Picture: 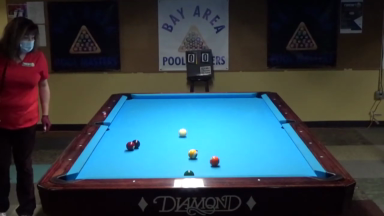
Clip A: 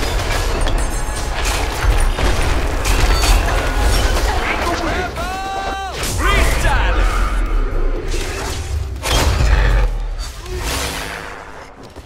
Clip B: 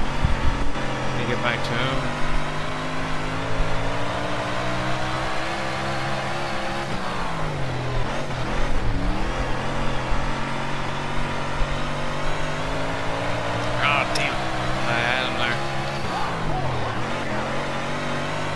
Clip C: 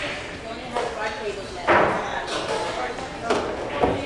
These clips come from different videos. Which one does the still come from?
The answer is C